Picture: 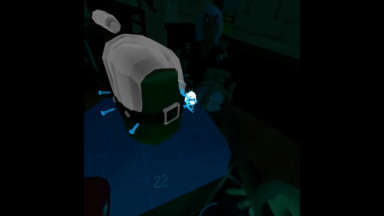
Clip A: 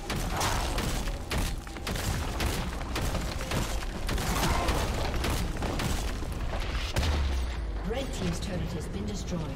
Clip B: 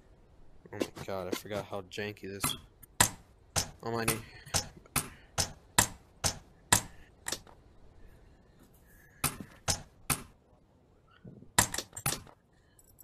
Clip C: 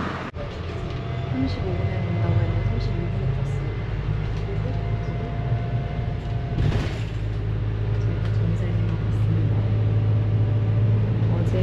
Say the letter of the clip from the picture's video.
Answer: B